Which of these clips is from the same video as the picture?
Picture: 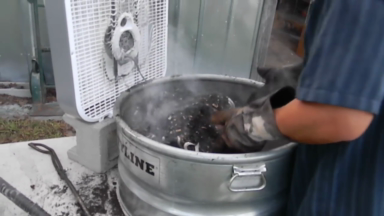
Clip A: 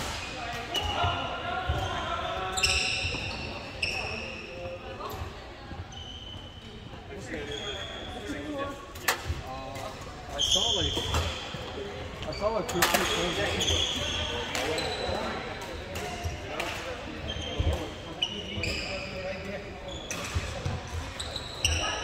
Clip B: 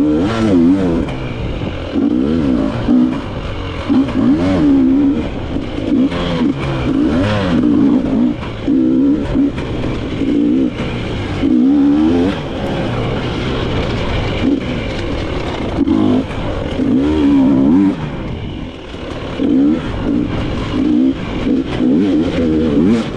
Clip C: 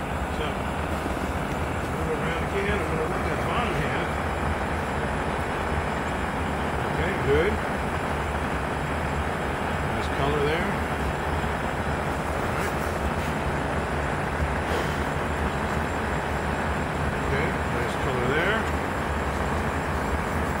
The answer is C